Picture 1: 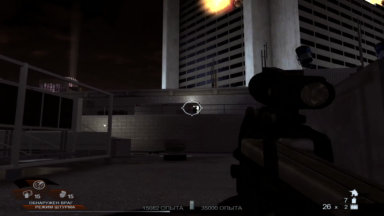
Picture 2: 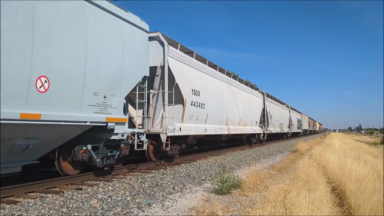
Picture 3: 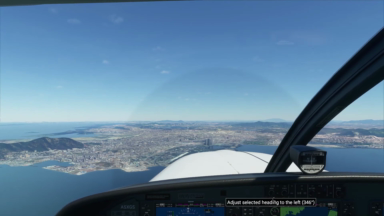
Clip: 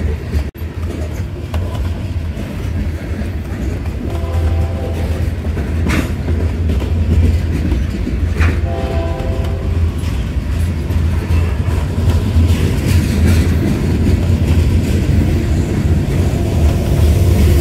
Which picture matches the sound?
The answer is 2